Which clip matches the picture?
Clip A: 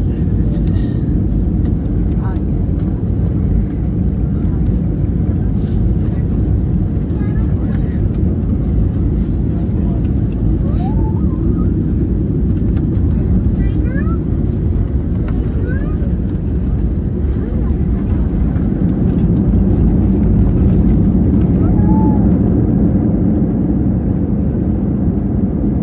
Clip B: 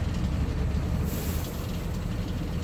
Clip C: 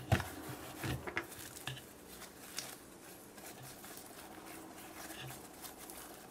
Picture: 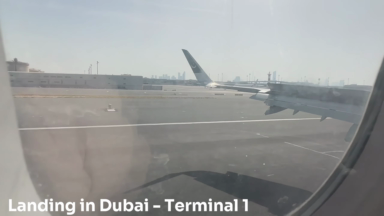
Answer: A